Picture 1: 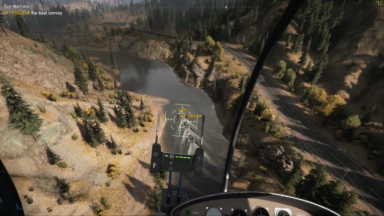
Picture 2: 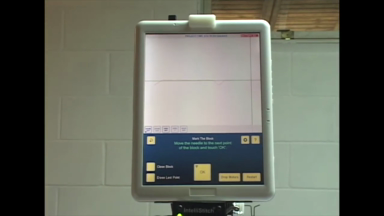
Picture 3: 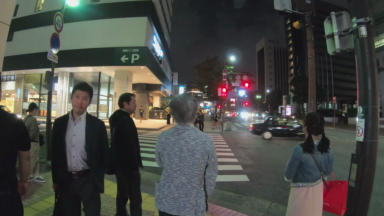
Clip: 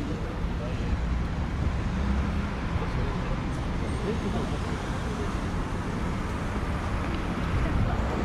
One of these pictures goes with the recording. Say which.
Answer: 3